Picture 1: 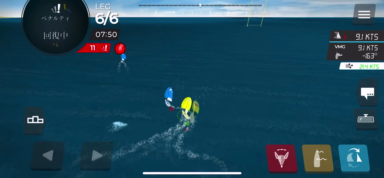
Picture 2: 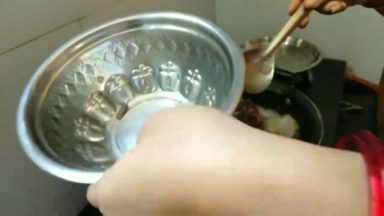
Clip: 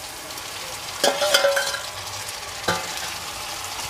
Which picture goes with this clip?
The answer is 2